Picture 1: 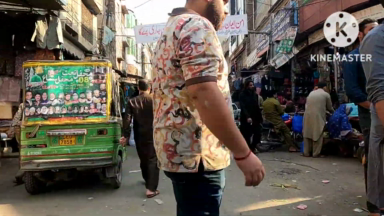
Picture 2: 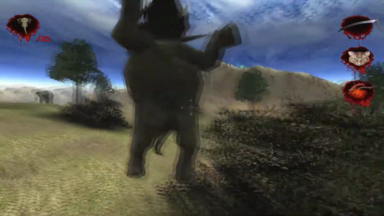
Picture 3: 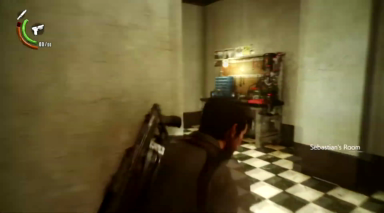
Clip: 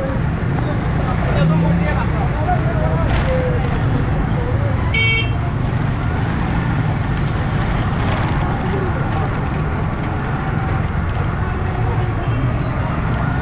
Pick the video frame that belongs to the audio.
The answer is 1